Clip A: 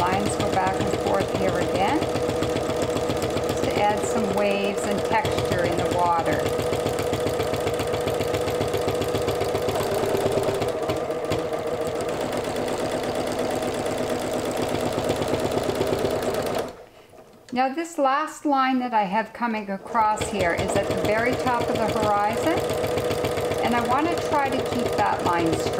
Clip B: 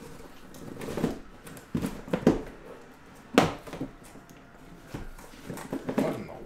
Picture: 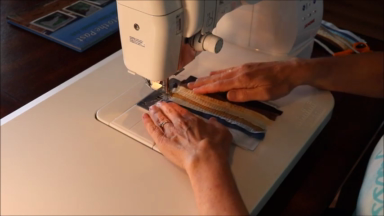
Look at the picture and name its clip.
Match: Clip A